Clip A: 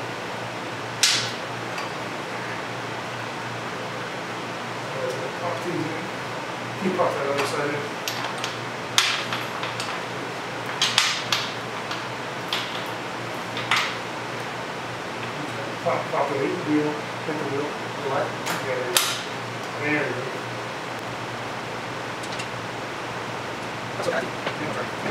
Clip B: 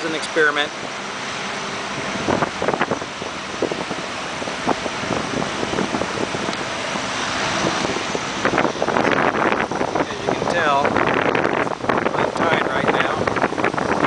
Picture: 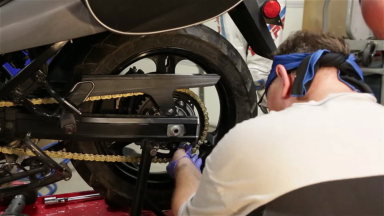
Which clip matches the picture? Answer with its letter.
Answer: A